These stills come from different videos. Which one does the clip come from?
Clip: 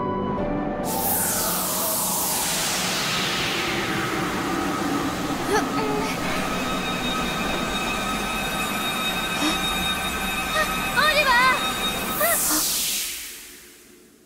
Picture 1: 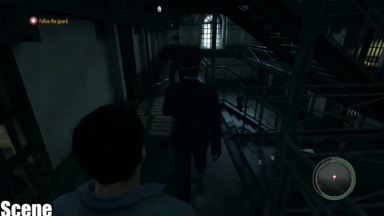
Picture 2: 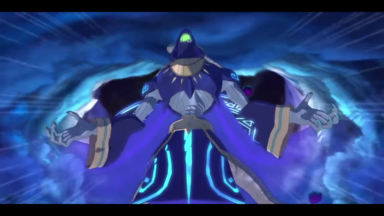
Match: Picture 2